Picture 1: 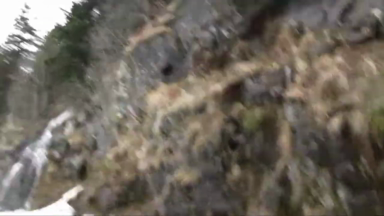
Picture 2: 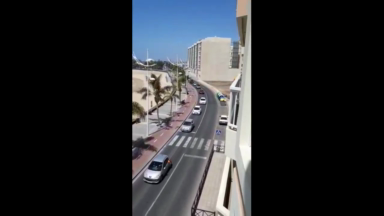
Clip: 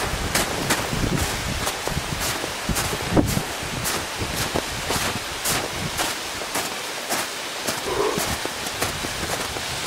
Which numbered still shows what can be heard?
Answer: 1